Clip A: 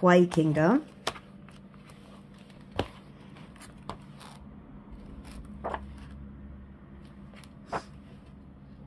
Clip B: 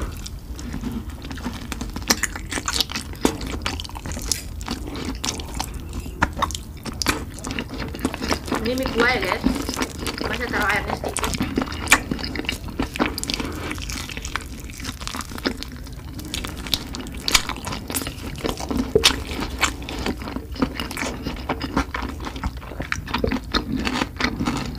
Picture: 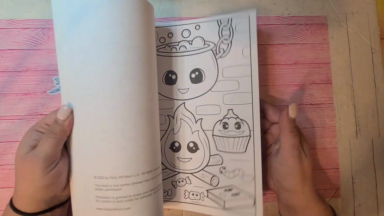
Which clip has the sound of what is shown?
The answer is A